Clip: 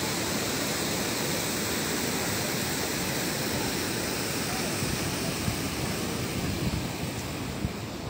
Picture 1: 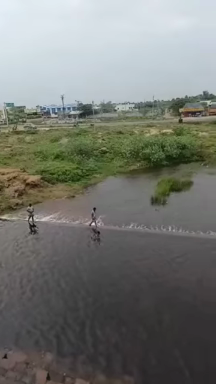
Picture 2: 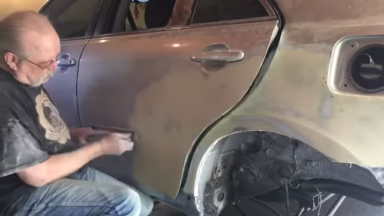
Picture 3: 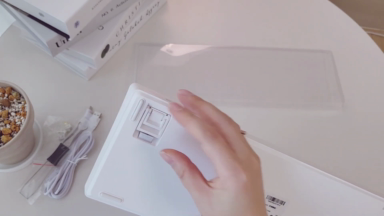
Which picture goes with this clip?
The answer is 1